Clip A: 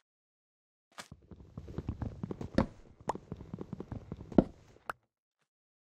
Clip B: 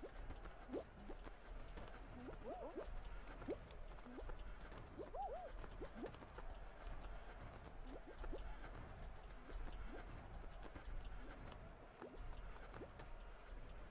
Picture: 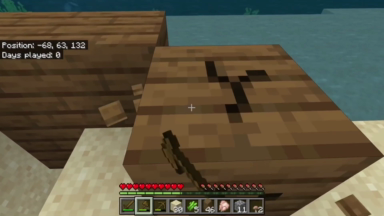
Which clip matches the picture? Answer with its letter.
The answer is A